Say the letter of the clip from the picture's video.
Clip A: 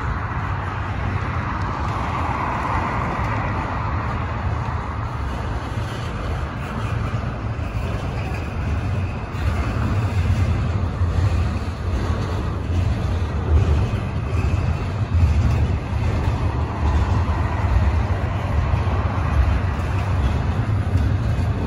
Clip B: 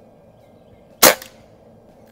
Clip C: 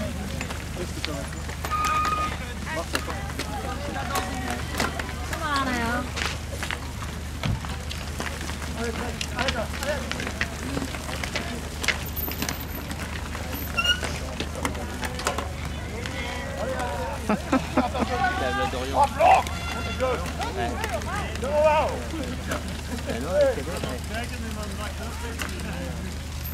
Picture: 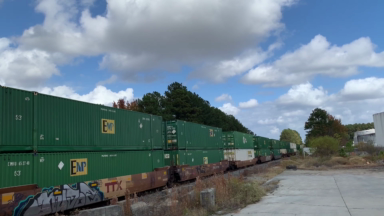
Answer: A